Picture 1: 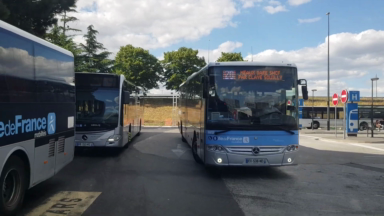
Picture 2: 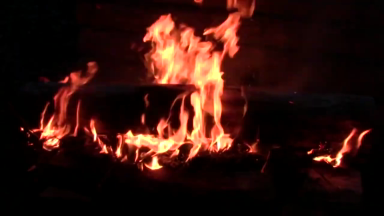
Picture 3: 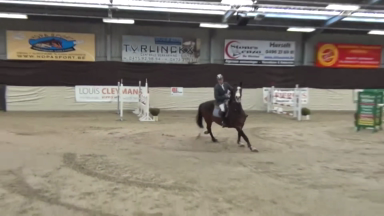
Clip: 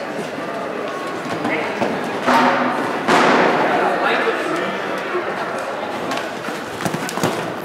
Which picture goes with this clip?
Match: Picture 3